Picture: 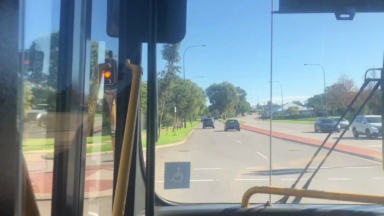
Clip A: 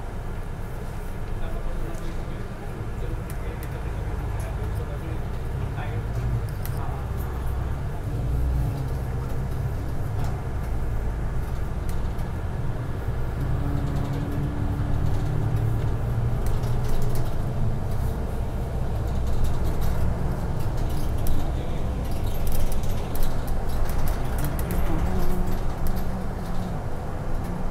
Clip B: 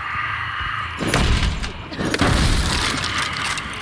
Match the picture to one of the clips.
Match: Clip A